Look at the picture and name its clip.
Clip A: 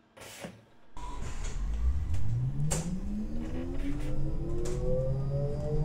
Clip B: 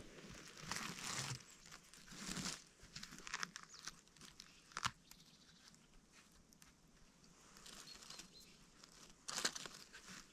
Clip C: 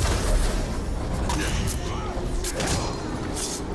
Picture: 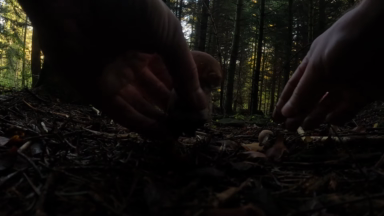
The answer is B